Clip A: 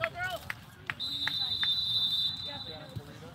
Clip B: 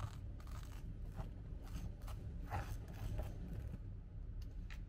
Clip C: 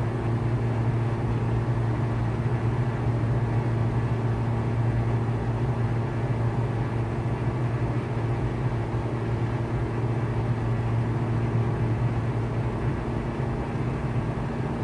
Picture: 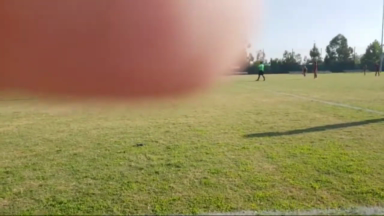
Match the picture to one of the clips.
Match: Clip A